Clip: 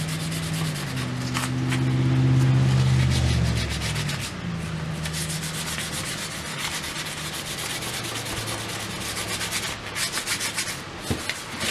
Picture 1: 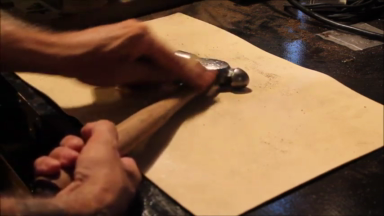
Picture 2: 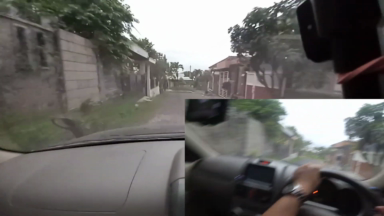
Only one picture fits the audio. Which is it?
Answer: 1